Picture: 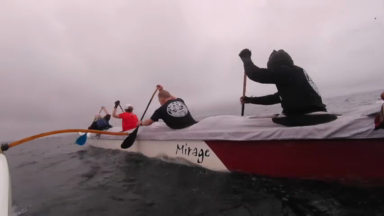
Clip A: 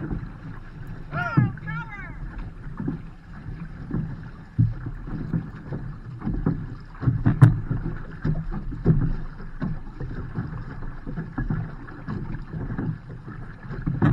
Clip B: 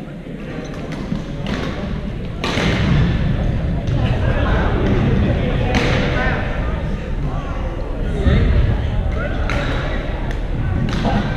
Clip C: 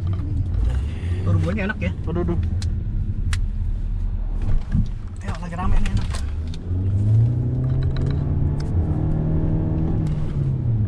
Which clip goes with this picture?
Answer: A